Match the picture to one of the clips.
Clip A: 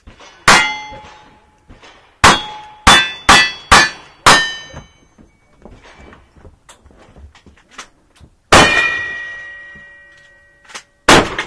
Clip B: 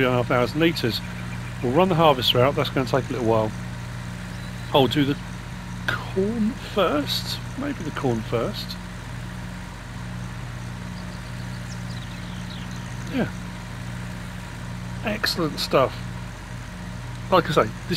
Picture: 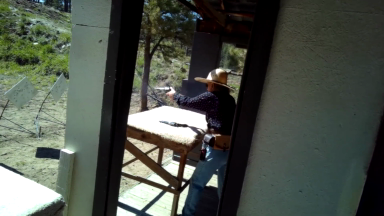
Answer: A